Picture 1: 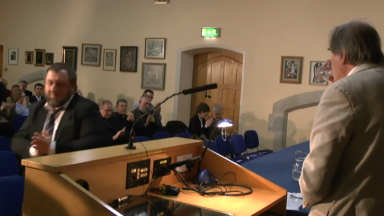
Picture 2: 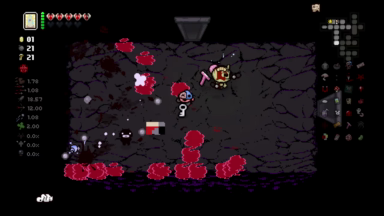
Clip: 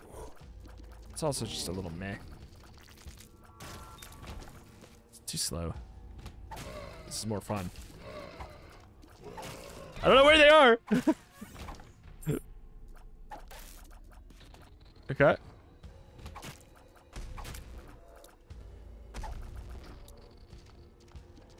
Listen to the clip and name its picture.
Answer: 2